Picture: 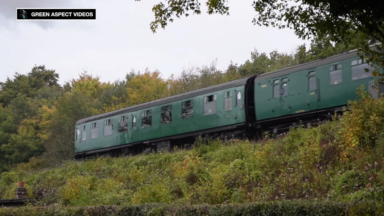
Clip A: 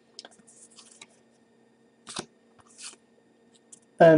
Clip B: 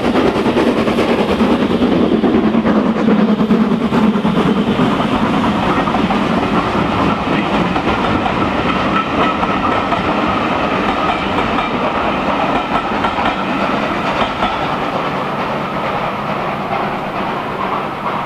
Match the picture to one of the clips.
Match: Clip B